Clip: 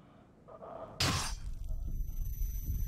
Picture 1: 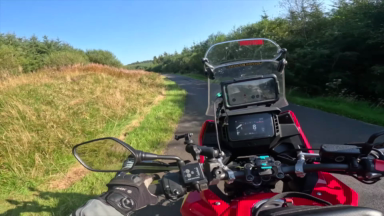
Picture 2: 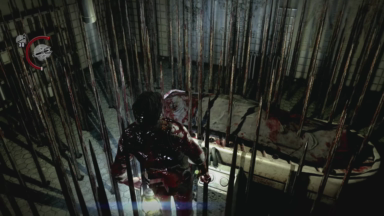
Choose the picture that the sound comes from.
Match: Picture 2